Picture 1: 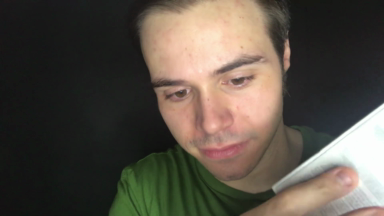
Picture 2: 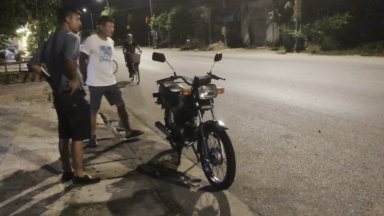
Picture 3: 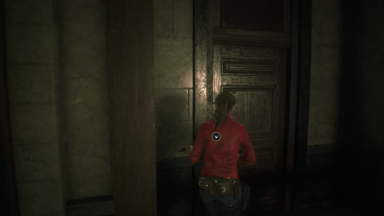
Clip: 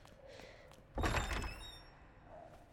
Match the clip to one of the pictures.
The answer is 3